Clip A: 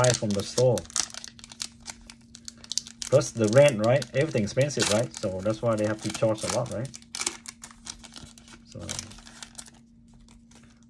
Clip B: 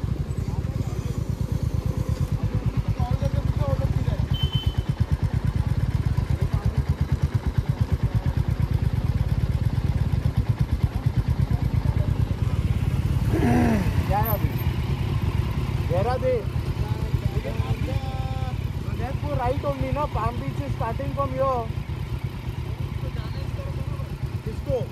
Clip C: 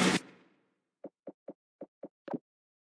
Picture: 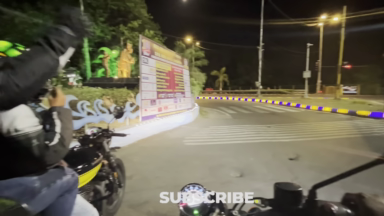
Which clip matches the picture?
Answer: B